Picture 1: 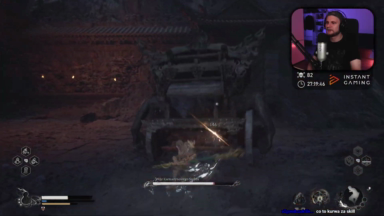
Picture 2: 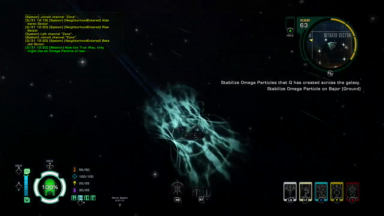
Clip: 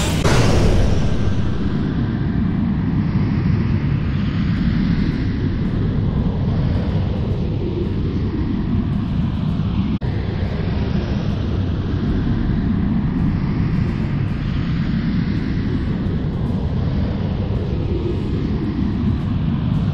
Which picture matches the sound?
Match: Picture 2